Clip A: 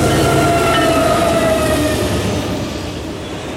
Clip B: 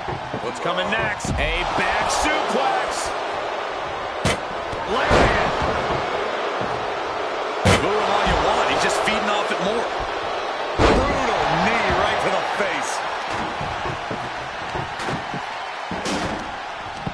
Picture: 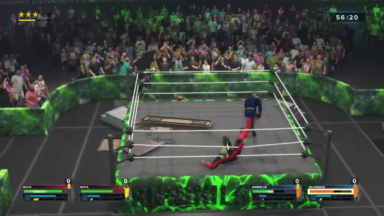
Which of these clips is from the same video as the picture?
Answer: B